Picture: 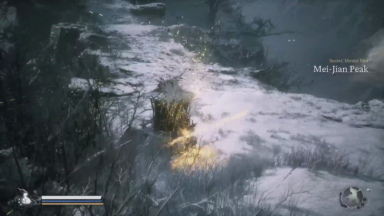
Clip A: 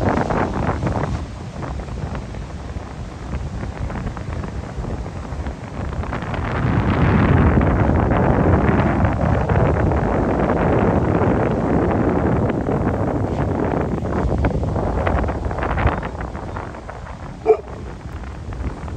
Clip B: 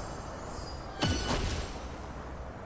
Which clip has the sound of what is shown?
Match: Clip B